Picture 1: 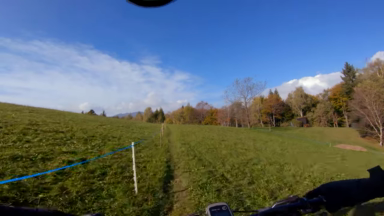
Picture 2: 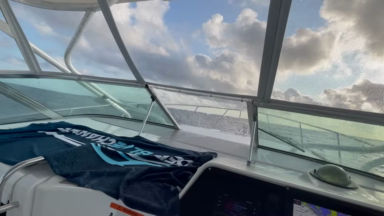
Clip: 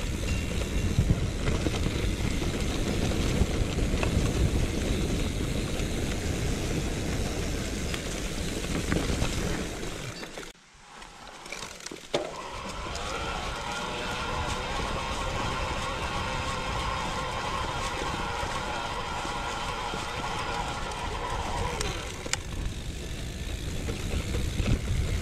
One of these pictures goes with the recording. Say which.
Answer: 1